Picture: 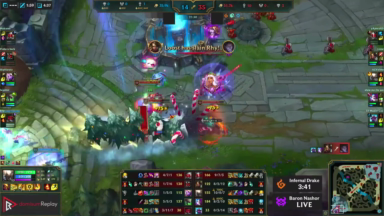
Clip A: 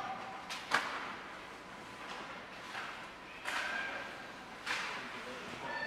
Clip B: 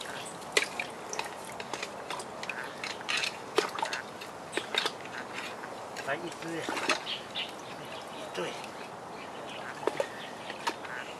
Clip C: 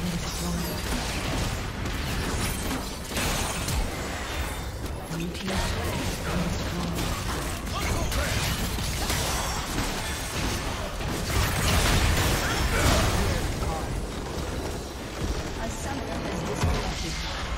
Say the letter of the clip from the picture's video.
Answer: C